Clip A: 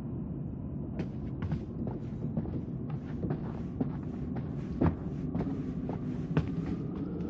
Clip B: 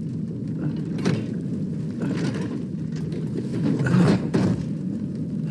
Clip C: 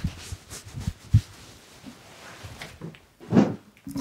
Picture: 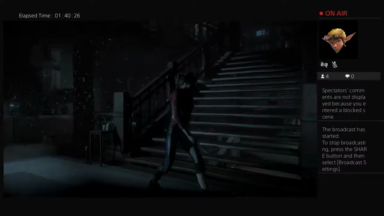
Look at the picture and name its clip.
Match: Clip A